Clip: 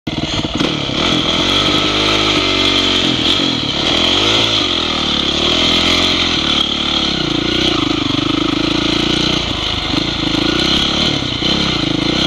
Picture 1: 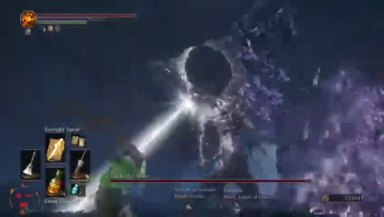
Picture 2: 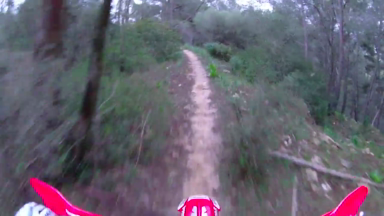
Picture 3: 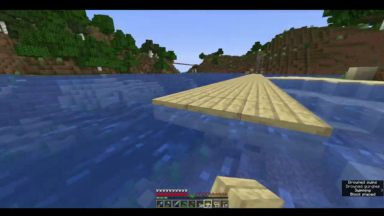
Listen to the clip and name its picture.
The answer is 2